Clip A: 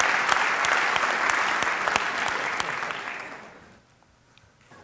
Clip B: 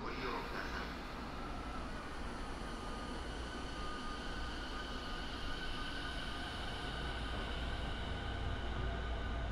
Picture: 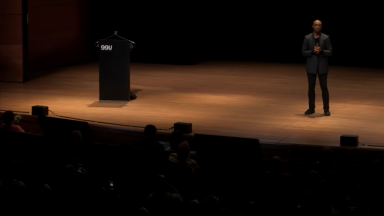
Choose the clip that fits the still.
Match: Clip A